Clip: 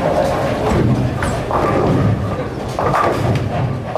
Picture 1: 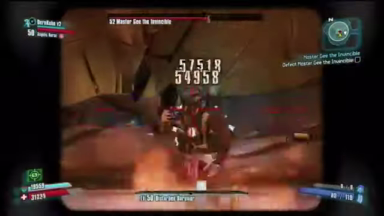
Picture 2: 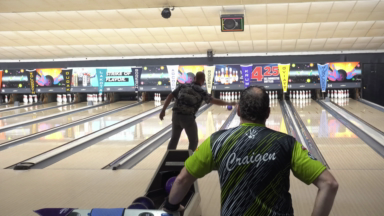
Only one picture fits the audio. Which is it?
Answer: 2